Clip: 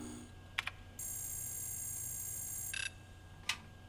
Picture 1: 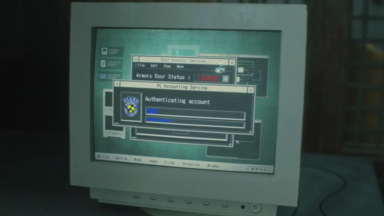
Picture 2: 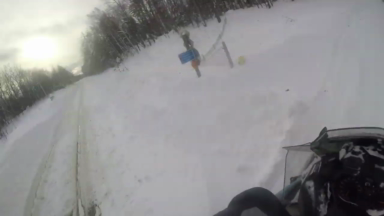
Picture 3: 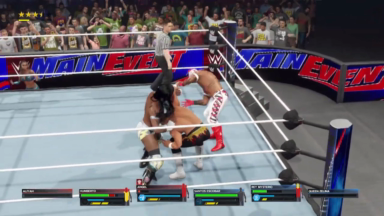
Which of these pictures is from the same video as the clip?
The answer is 1